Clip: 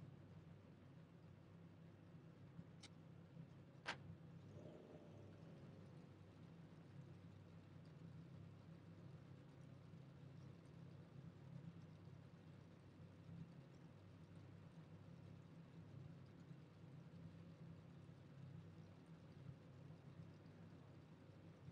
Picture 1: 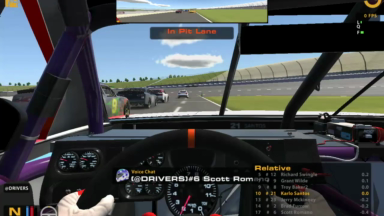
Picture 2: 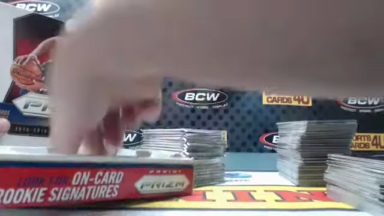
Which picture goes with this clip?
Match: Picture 1